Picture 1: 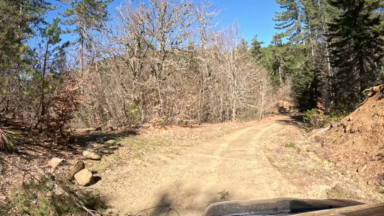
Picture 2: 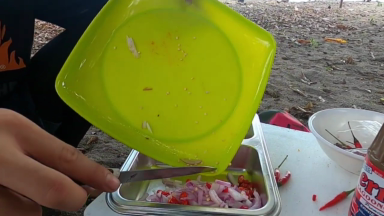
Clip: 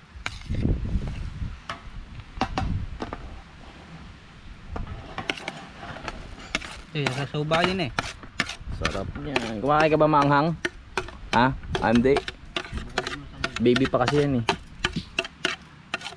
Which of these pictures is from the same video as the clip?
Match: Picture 2